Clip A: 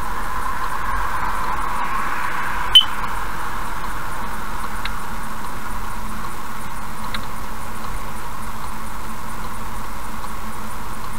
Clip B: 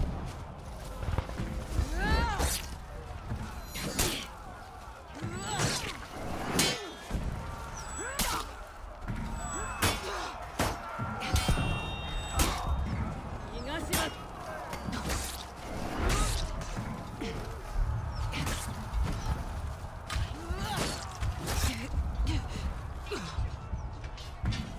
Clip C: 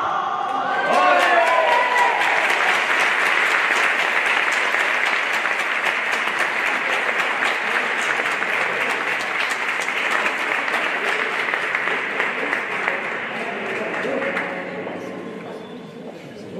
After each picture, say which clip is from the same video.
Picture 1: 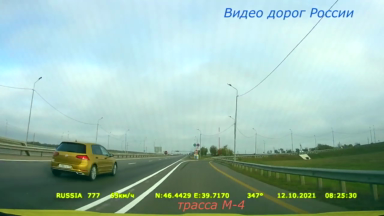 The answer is A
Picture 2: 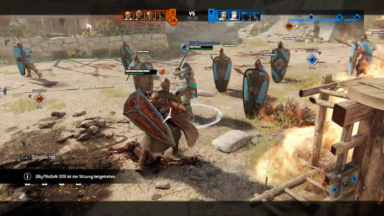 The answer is B